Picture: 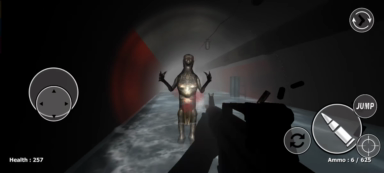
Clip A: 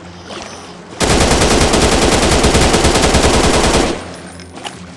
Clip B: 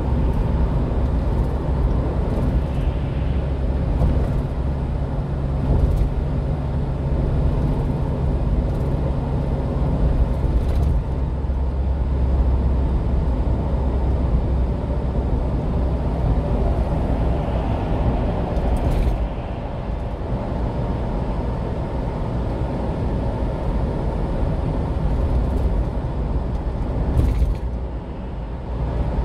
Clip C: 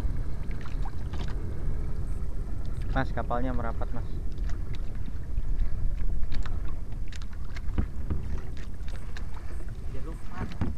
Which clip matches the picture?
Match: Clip A